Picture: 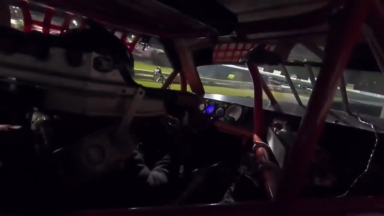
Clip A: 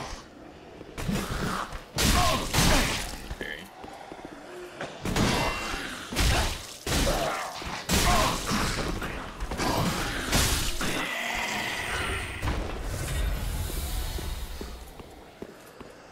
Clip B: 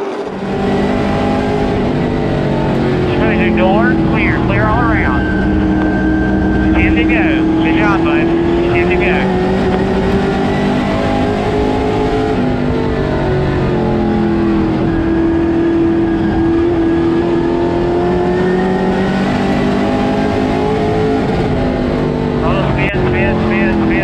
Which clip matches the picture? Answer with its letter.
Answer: B